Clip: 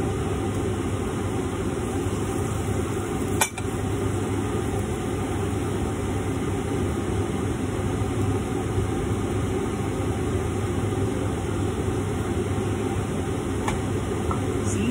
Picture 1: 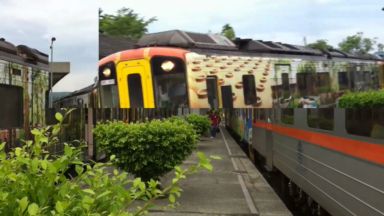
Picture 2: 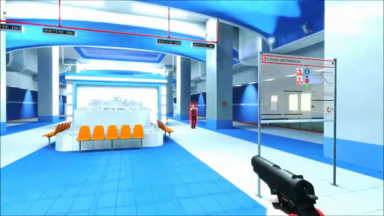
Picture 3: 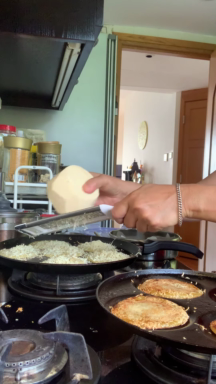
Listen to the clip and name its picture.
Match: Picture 3